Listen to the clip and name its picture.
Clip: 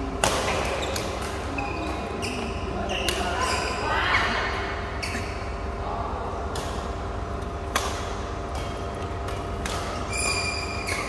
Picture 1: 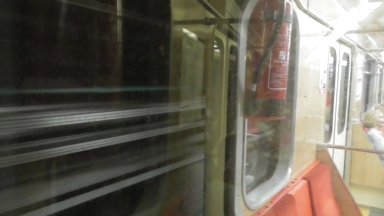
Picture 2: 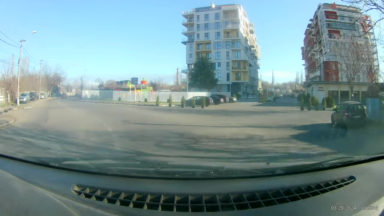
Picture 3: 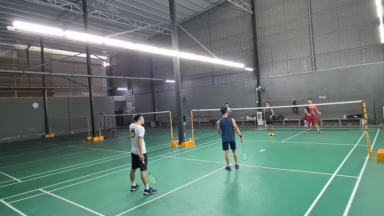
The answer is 3